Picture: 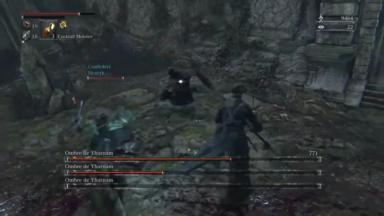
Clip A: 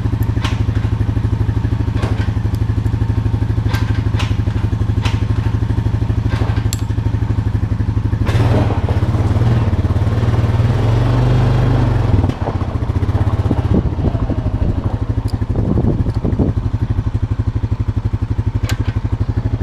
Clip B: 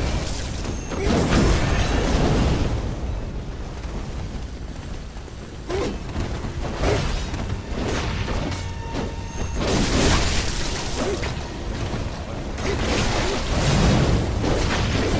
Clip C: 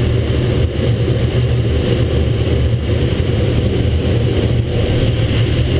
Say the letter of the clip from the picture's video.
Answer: B